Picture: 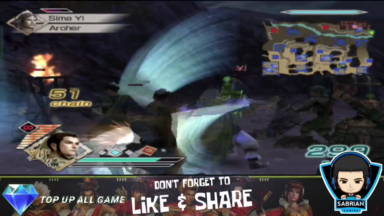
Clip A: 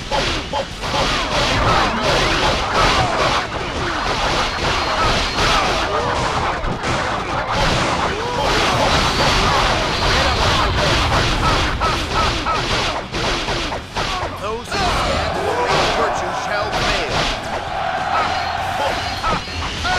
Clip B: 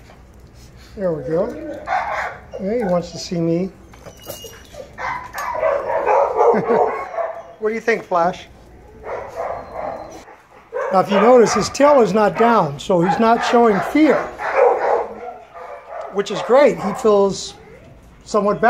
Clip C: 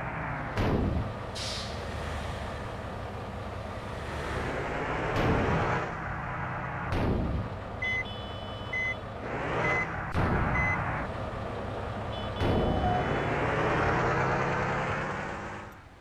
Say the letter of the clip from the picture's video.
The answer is A